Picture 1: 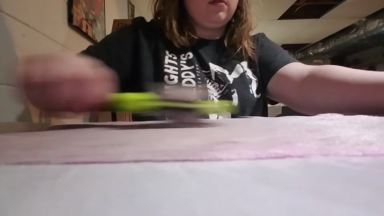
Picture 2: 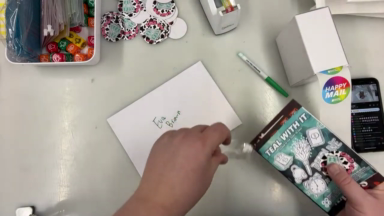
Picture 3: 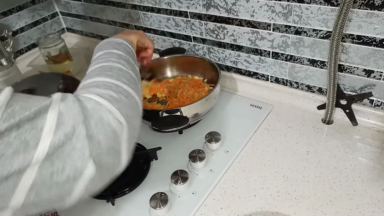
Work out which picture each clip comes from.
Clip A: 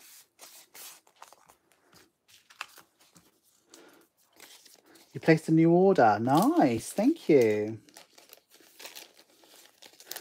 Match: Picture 2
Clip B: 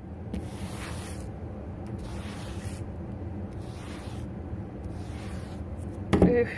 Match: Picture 1